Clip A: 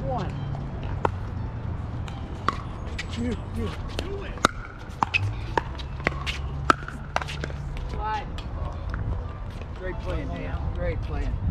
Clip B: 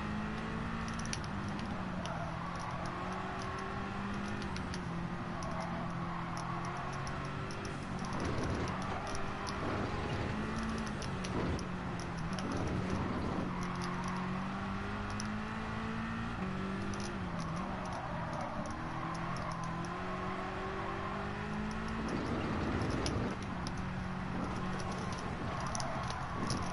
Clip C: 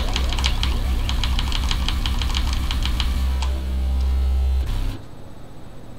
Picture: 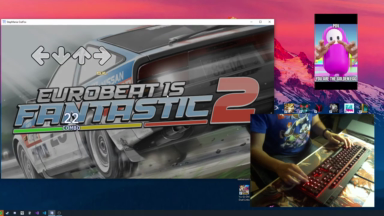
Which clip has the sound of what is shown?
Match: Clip C